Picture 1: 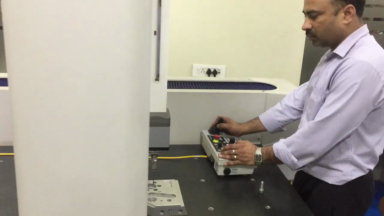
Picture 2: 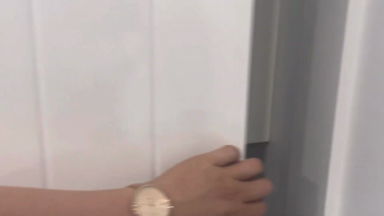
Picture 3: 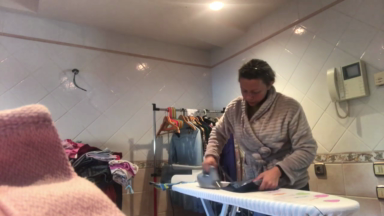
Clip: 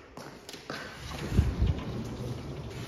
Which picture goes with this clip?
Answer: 2